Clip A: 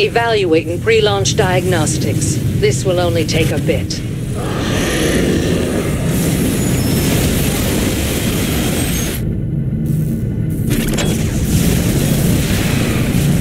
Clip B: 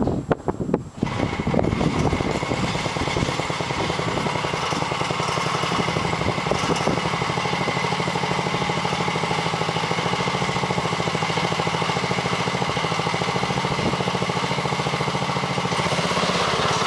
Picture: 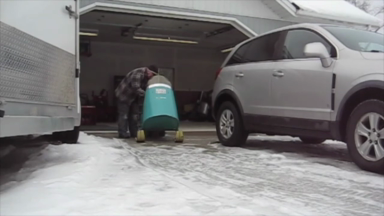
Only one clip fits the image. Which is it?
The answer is B